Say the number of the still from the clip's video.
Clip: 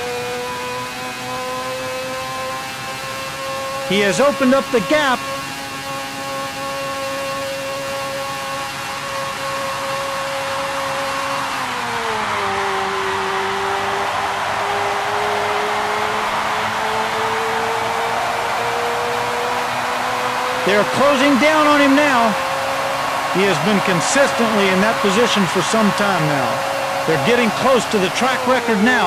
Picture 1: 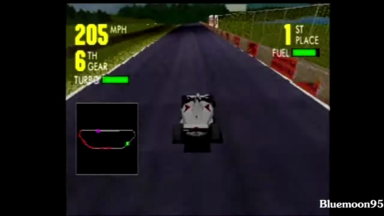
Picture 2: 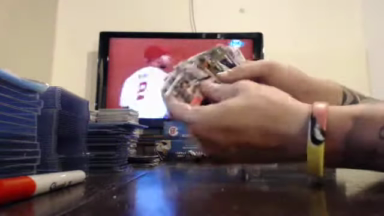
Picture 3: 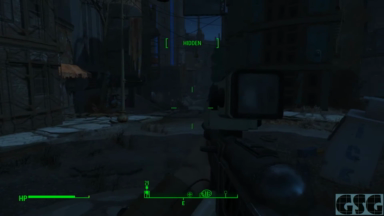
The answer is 1